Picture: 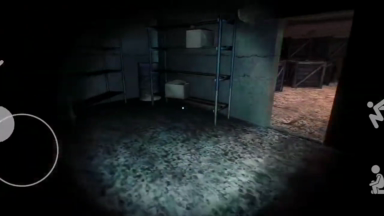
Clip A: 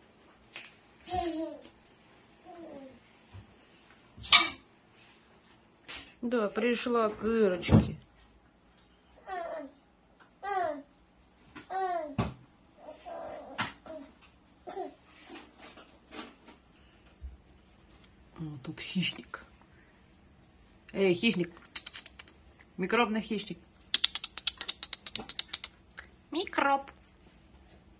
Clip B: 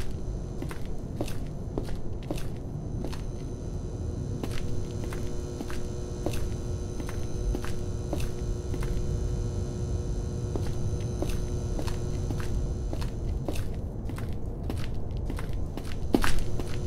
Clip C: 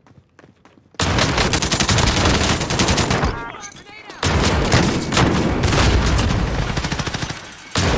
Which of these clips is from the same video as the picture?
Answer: B